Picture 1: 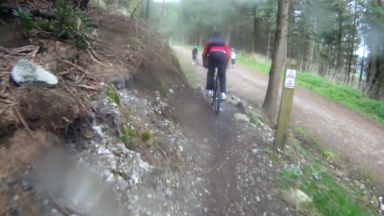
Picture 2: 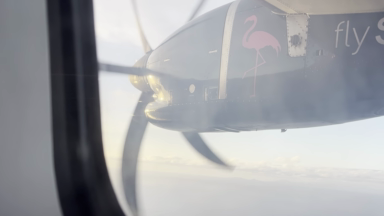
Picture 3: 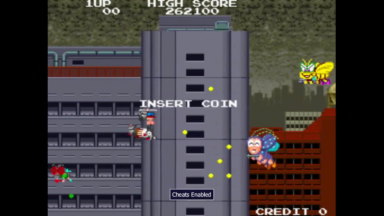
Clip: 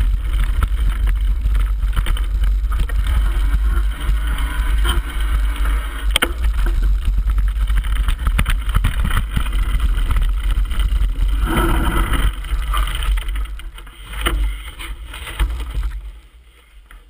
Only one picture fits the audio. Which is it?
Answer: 1